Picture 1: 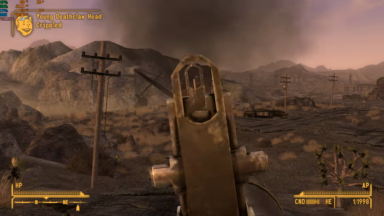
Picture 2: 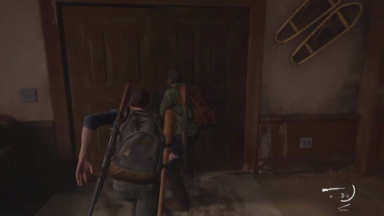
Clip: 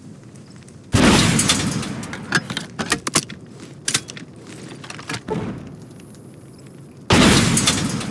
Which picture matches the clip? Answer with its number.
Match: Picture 1